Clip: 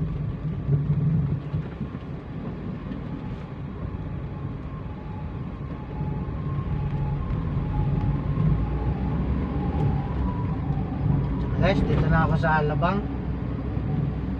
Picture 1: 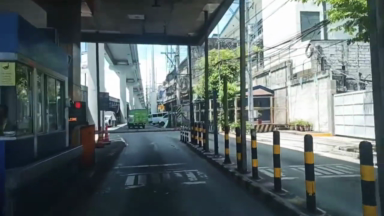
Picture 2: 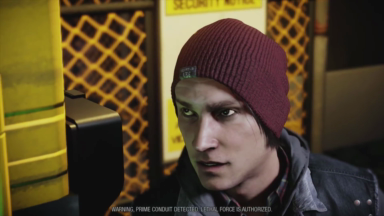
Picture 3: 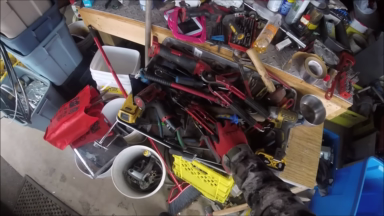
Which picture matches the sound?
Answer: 1